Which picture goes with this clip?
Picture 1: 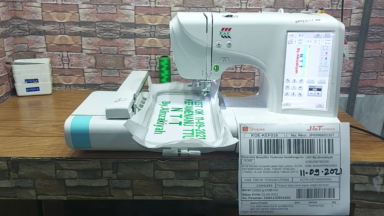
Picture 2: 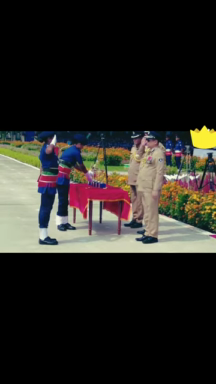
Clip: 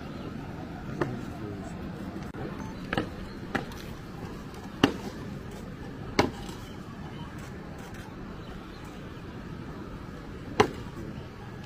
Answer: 2